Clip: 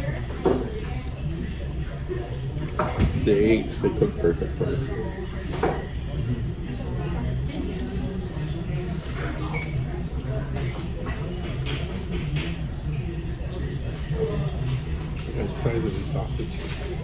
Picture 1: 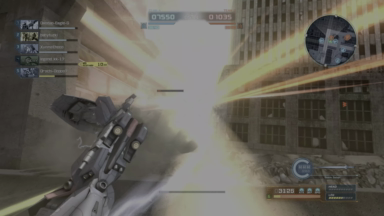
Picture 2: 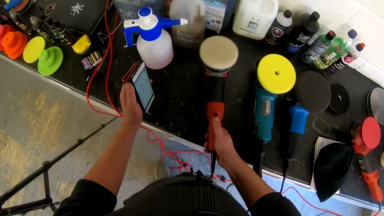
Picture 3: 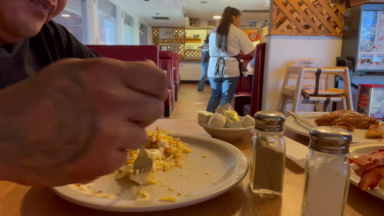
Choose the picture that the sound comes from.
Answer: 3